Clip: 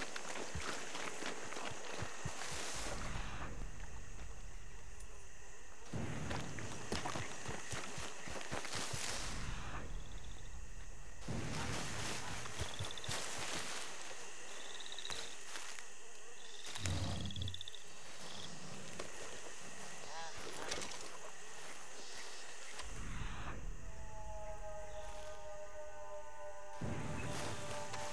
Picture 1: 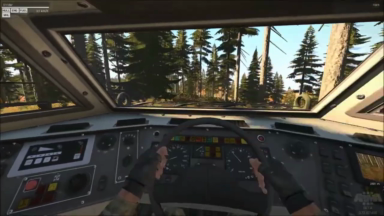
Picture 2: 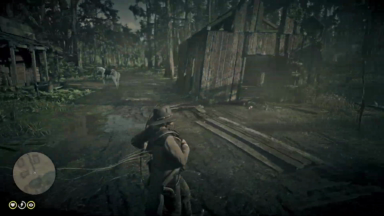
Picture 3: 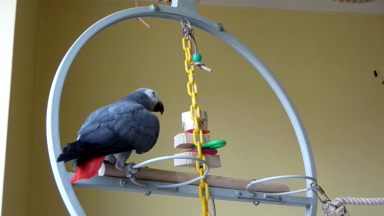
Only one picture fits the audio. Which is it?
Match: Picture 2